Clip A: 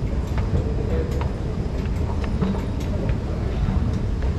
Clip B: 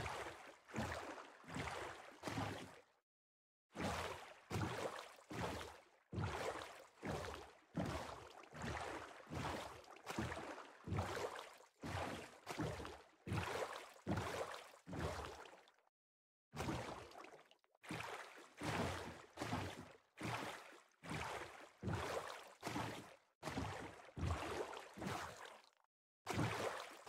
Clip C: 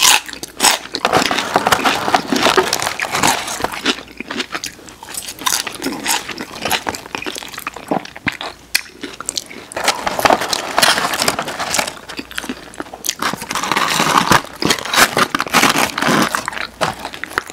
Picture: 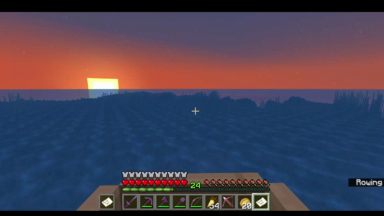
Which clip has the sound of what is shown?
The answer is B